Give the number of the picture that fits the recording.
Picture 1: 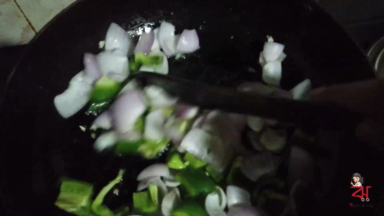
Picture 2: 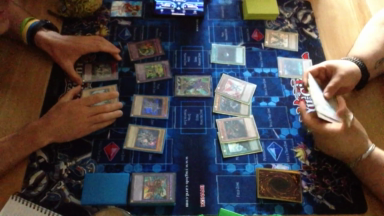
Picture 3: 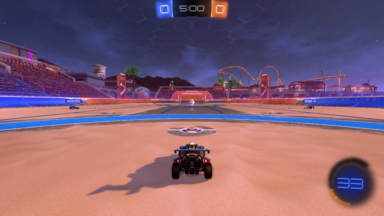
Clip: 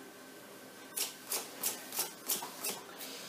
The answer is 2